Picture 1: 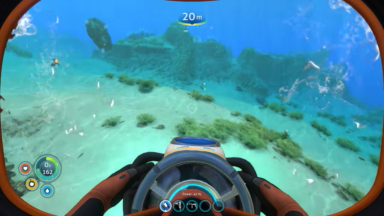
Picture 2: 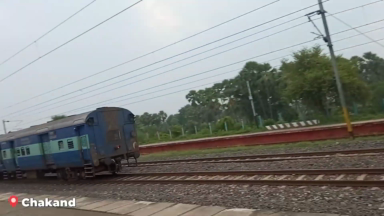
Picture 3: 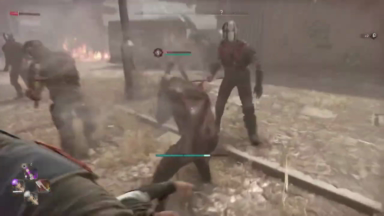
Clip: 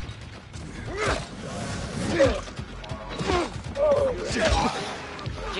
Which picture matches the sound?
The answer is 3